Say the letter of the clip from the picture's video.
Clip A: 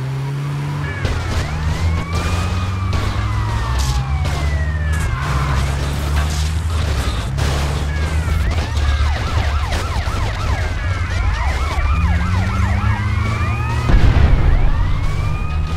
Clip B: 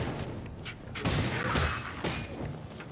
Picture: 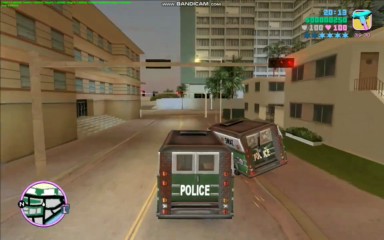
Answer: A